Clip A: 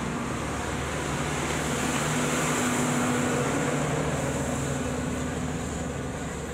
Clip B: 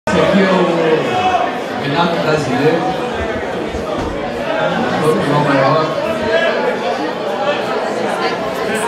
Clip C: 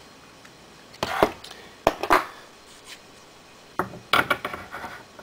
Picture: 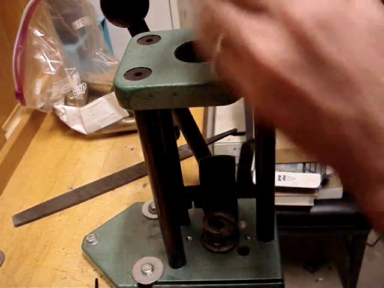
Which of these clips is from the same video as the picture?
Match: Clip C